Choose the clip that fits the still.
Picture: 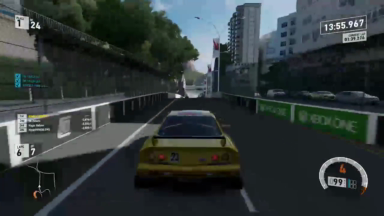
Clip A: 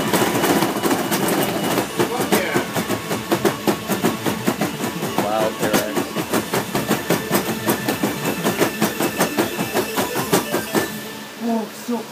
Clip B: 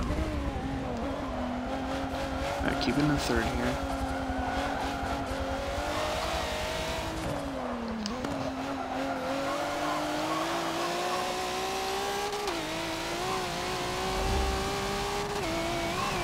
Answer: B